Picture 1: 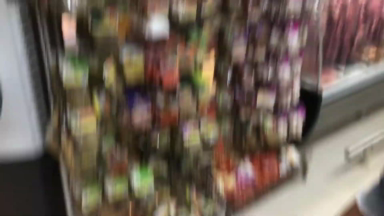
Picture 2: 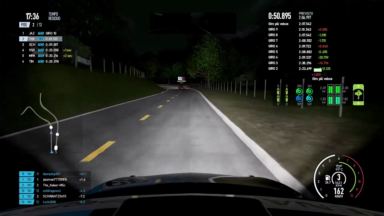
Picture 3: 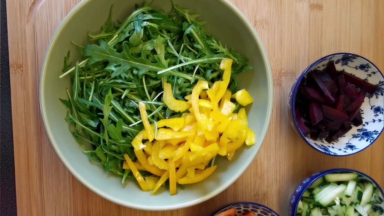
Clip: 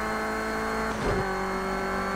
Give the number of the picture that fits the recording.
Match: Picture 2